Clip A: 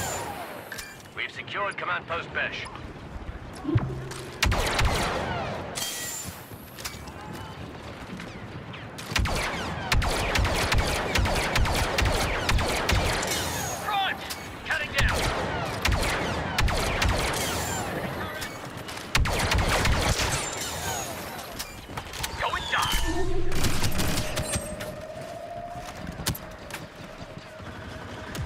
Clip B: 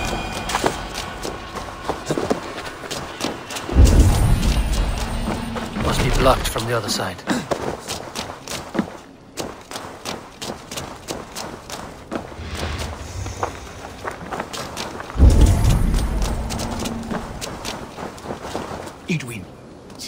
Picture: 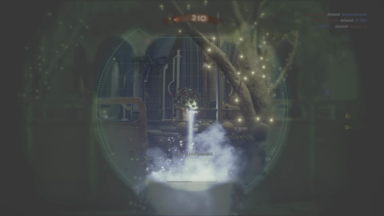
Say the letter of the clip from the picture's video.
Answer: A